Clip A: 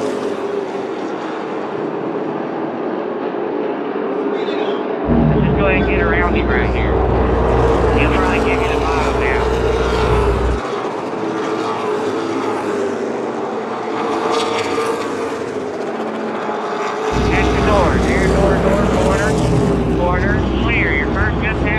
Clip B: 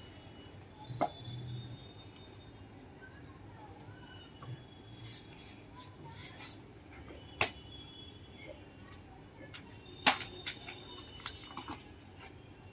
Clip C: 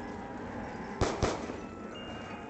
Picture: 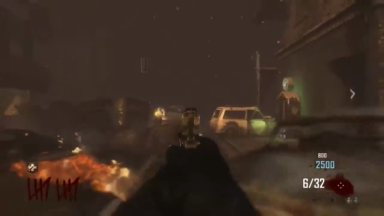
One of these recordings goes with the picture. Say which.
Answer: C